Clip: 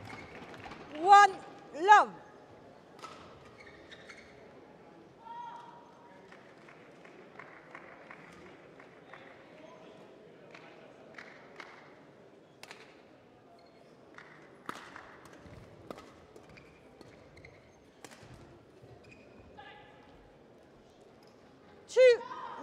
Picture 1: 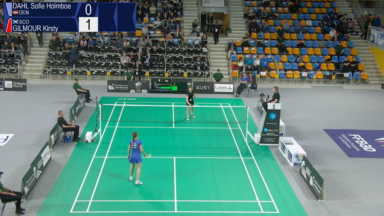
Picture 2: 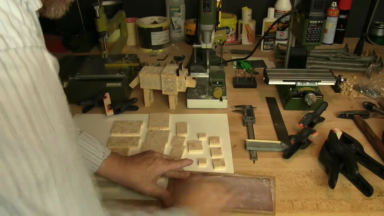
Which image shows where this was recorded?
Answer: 1